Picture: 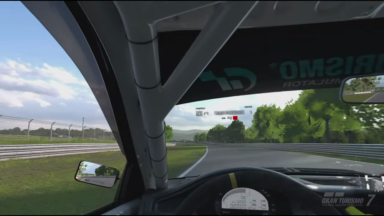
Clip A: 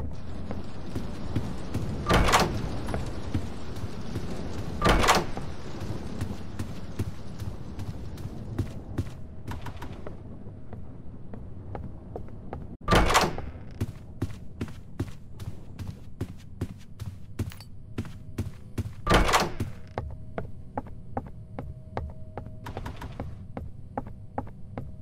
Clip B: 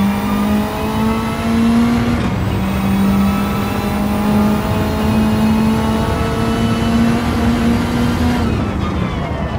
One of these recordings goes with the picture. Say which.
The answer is B